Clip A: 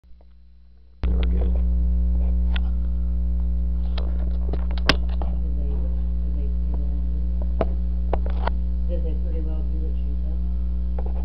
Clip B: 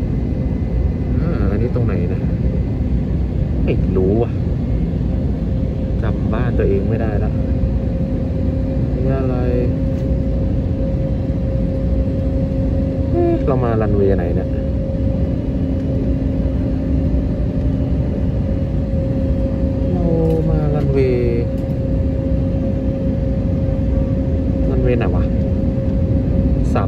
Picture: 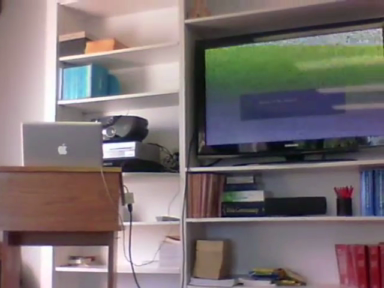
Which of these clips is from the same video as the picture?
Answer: A